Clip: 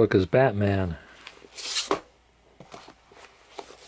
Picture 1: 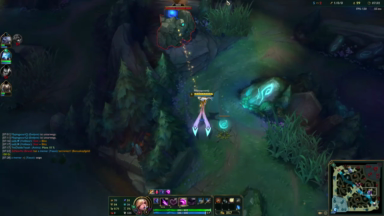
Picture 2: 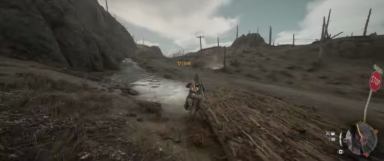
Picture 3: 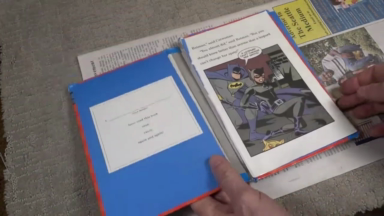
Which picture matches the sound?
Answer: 3